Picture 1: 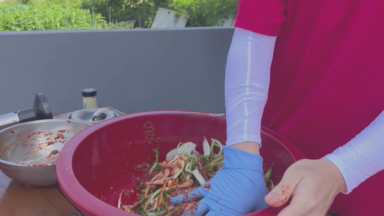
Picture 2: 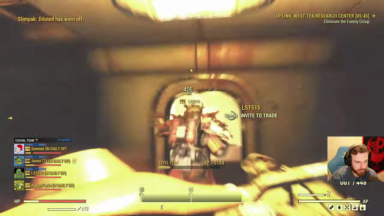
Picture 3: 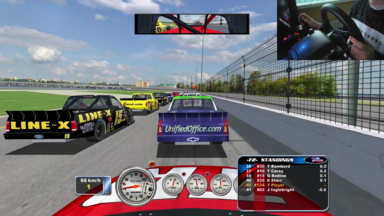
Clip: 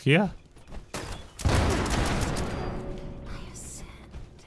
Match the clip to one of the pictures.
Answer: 2